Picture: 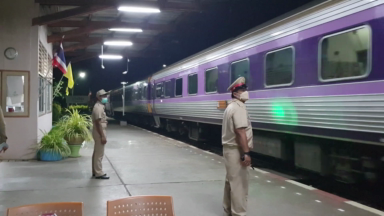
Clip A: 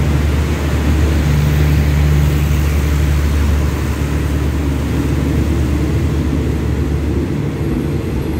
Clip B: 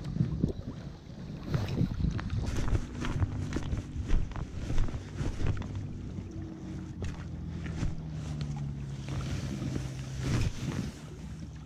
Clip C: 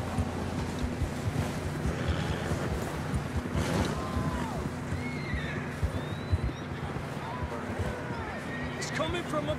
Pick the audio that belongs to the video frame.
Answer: A